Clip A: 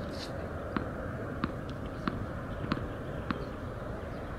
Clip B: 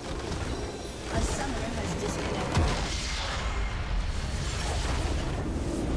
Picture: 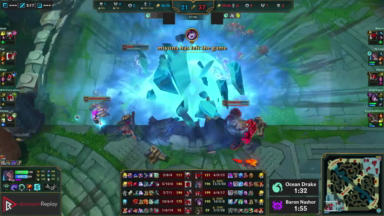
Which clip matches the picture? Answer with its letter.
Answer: B